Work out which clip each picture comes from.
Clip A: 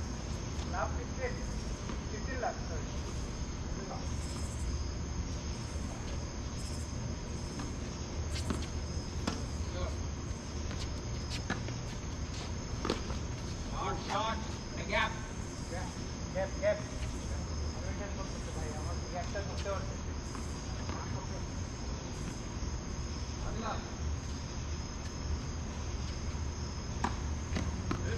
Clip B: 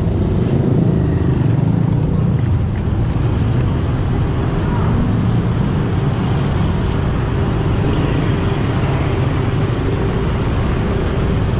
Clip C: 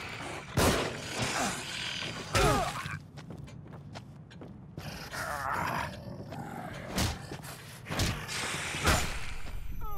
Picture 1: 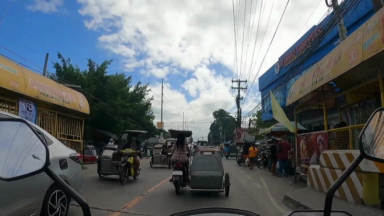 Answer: B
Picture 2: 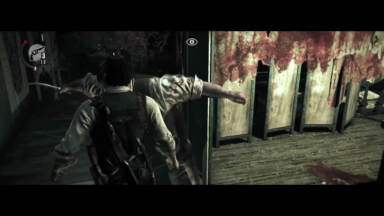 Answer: C